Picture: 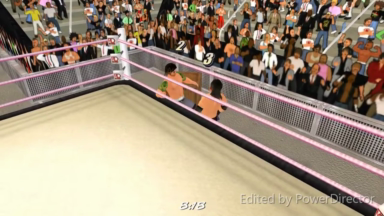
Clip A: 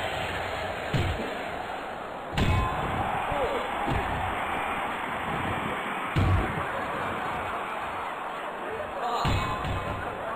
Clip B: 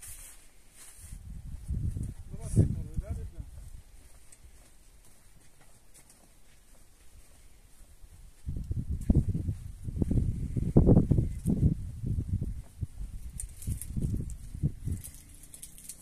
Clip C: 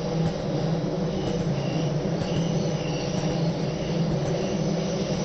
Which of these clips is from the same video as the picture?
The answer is A